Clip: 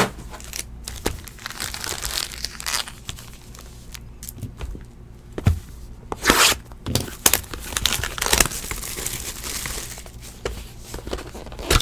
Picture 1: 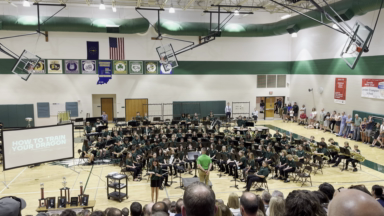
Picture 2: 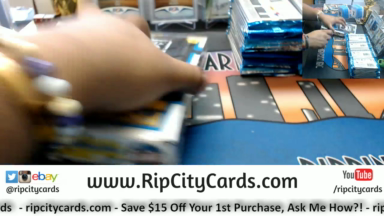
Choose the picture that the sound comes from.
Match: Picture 2